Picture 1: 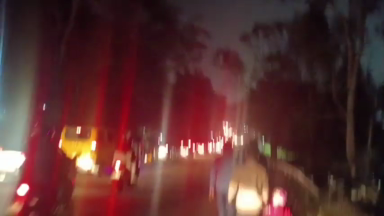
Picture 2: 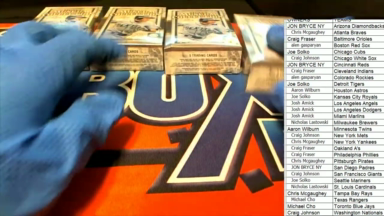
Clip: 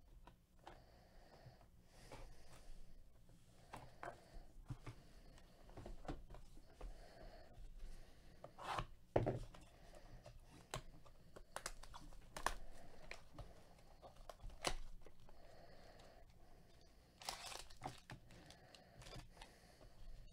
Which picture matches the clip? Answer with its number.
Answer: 2